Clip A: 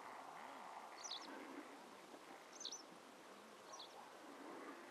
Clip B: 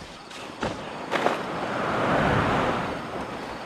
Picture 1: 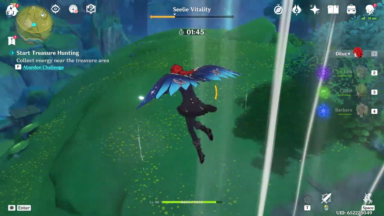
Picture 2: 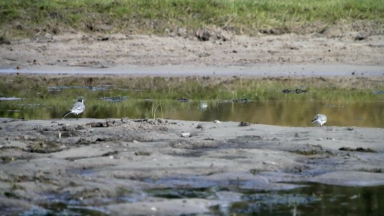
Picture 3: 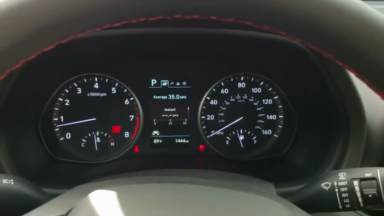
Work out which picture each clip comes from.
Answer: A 2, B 1